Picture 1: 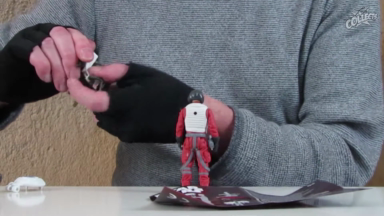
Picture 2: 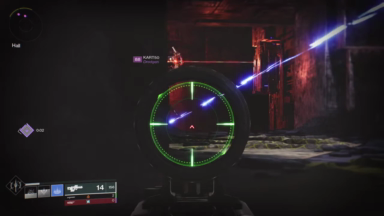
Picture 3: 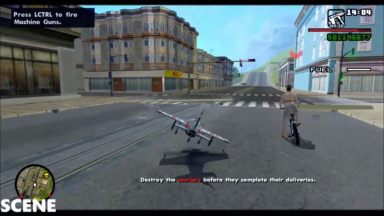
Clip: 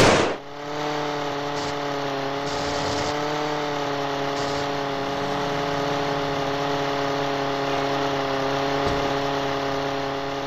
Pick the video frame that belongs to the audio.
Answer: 3